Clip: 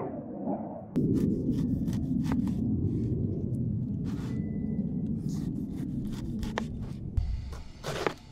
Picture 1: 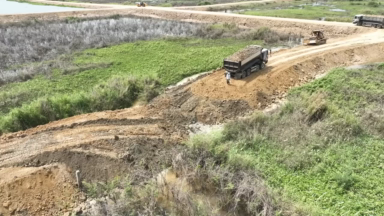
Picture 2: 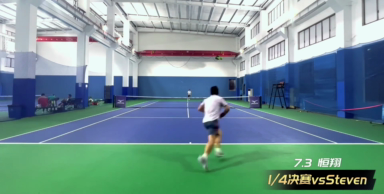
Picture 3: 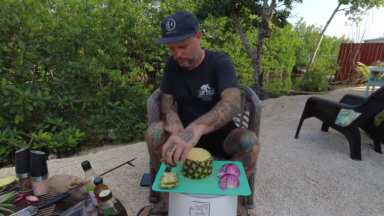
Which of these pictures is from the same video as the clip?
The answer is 3